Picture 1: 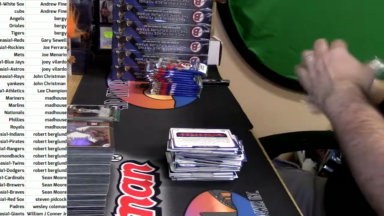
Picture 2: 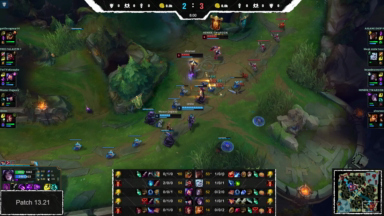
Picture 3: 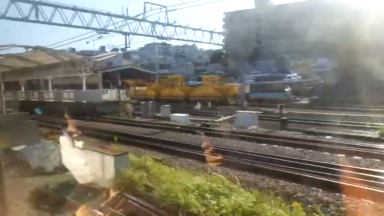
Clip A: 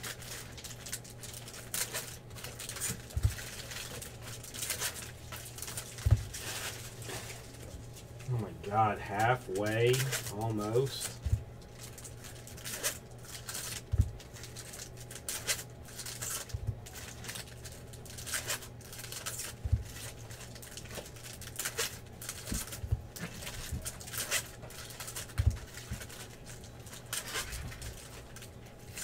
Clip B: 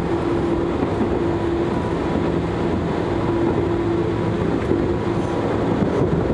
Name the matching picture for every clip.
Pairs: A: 1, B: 3